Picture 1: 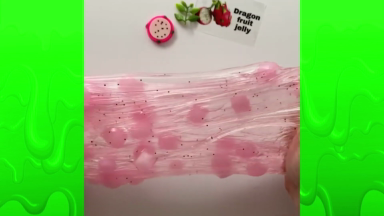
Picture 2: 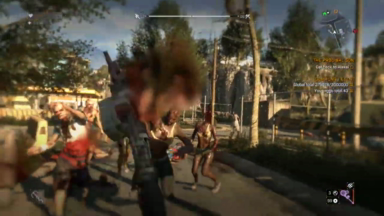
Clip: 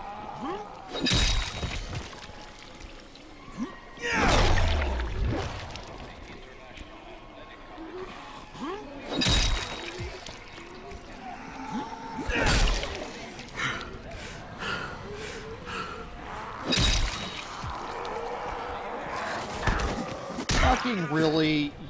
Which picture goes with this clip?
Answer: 2